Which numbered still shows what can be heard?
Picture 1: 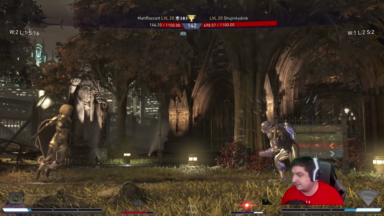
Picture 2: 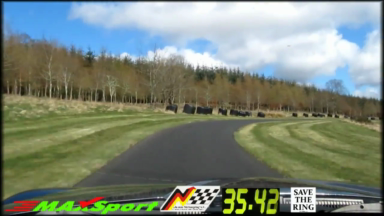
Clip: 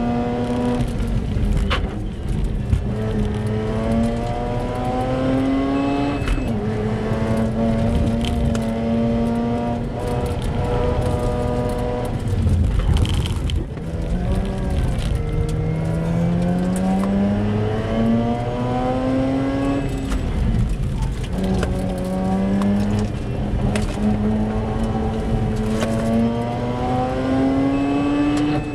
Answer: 2